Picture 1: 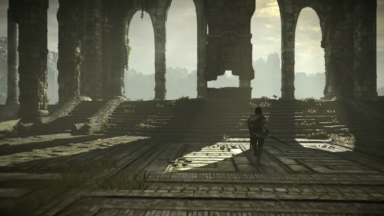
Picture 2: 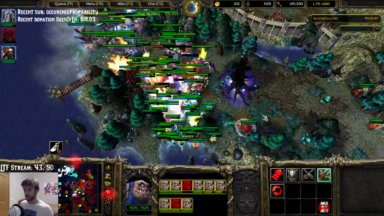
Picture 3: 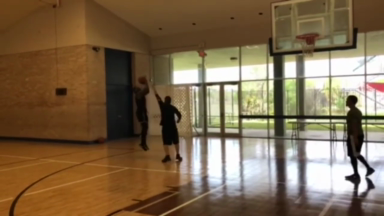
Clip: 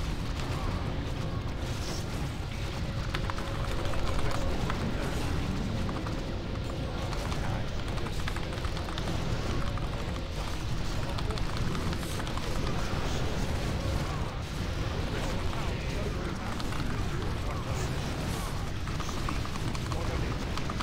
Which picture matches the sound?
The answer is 2